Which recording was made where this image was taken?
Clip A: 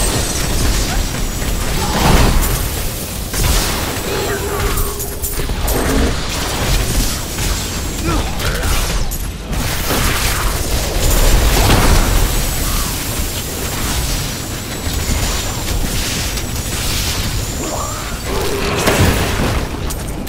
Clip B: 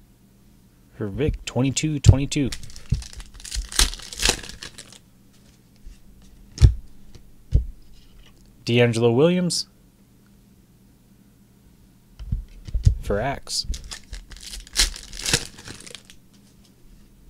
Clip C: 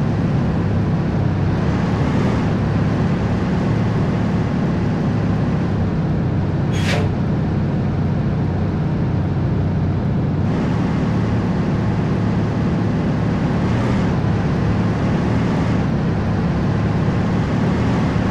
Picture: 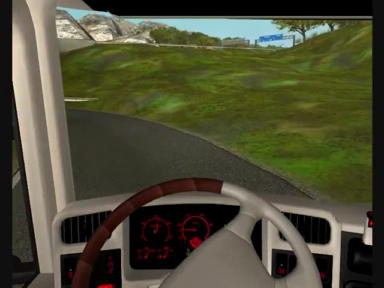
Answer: C